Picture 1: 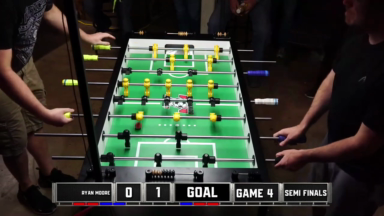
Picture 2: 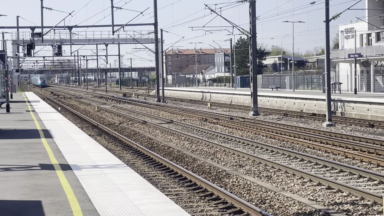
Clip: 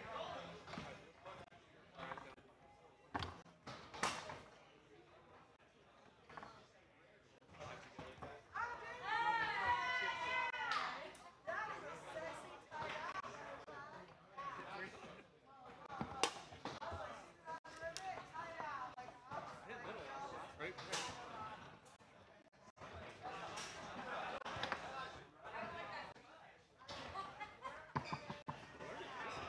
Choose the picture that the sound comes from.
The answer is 1